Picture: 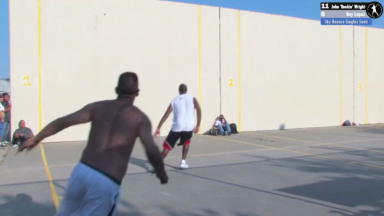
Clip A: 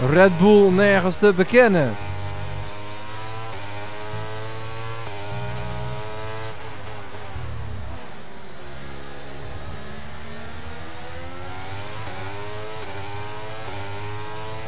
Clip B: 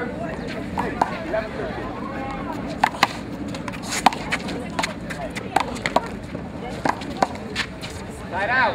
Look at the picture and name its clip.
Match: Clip B